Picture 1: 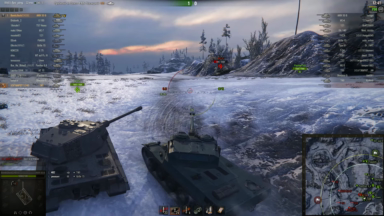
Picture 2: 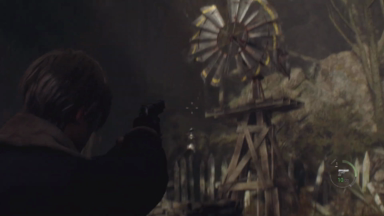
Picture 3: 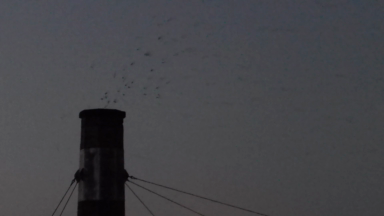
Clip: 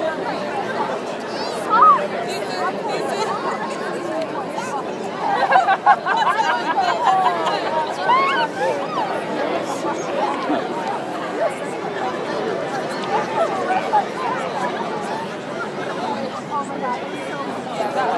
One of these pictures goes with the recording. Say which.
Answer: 3